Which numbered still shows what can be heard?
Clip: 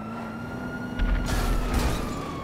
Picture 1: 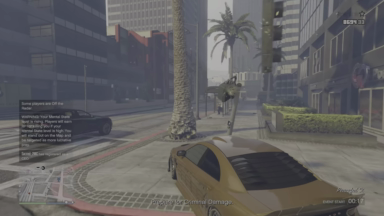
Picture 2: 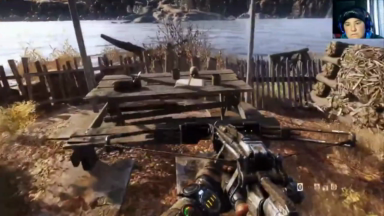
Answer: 1